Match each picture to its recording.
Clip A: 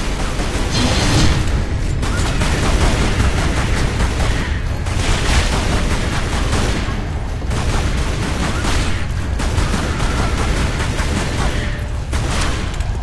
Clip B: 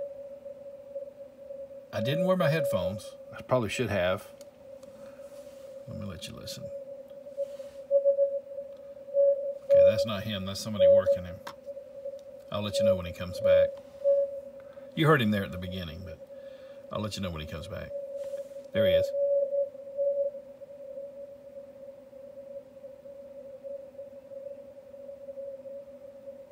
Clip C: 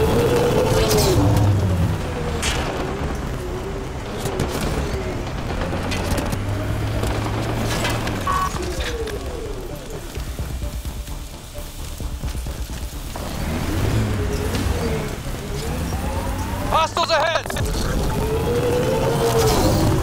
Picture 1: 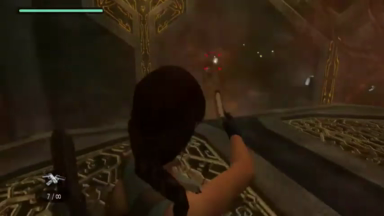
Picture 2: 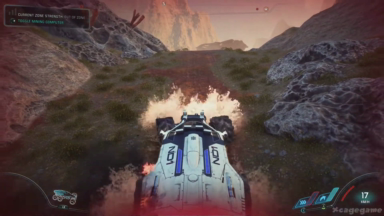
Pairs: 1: A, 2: C